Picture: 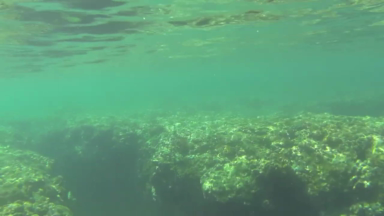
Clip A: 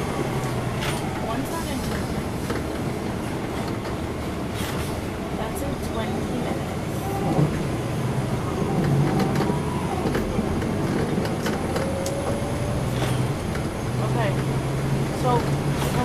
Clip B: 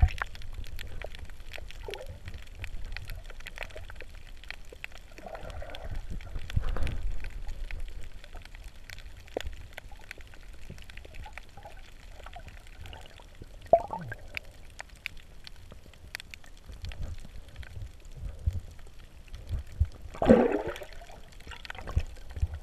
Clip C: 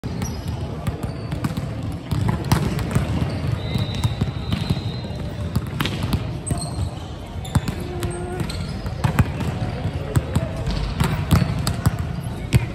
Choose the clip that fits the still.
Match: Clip B